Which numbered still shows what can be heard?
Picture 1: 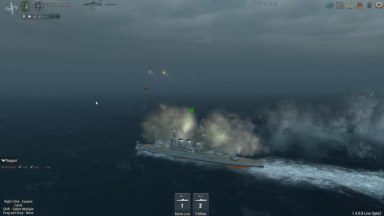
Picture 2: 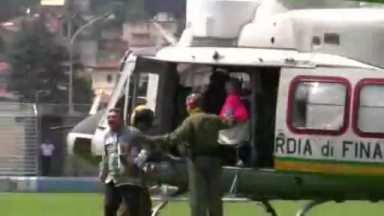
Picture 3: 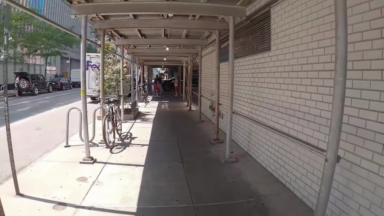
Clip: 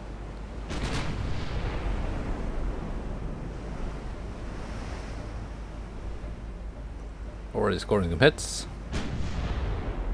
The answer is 1